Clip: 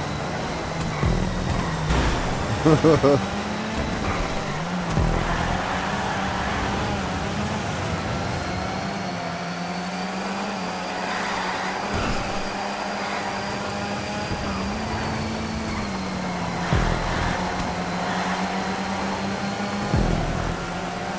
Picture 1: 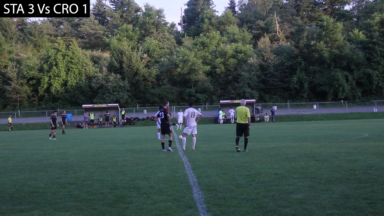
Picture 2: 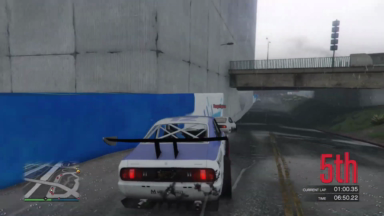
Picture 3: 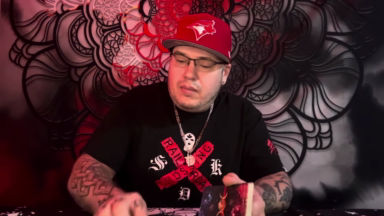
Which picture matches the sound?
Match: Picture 2